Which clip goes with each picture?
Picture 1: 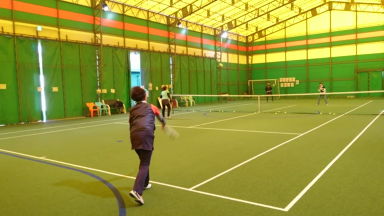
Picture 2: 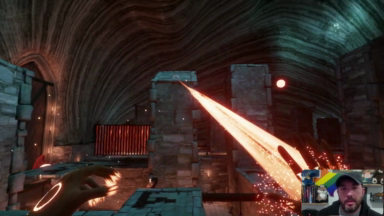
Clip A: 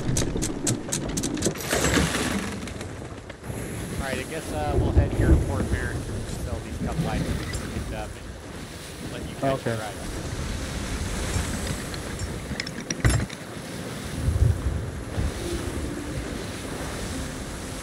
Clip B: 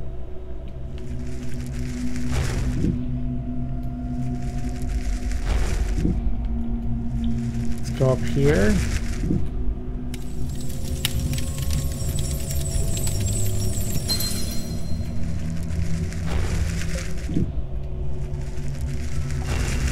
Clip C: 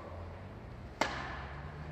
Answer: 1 C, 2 B